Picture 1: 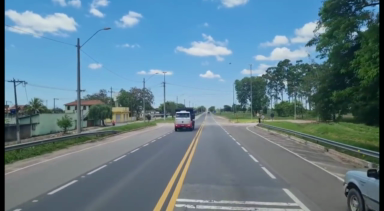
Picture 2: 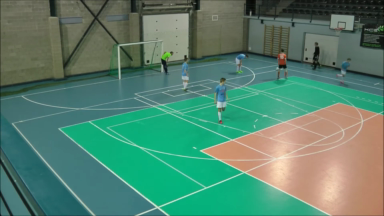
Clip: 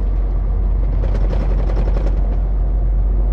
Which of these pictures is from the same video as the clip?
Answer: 1